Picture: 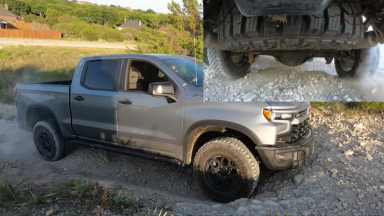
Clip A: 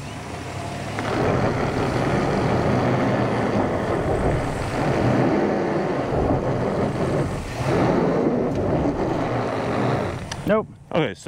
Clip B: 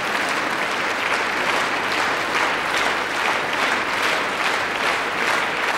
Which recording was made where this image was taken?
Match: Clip A